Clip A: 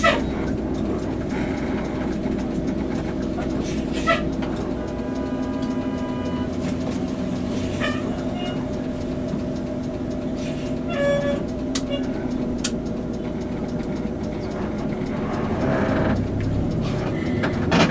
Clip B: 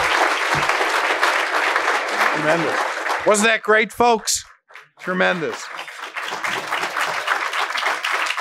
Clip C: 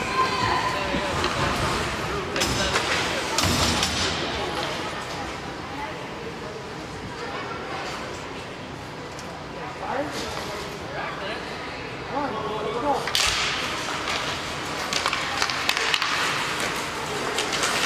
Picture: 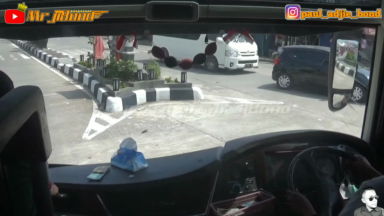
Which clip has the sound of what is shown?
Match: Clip A